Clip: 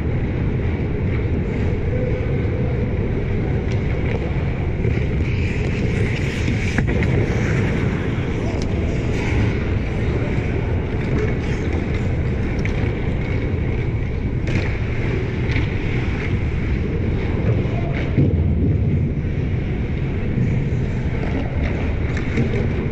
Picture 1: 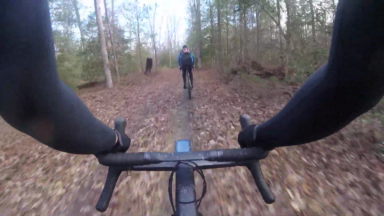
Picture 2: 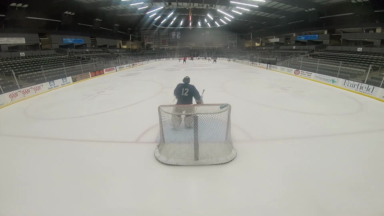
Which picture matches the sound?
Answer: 2